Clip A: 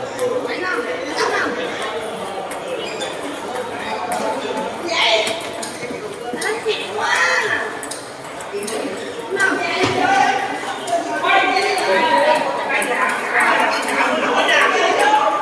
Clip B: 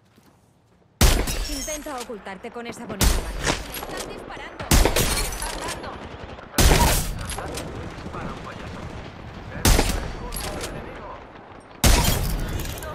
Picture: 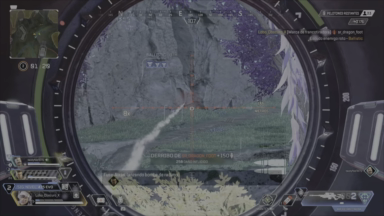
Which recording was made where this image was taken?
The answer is B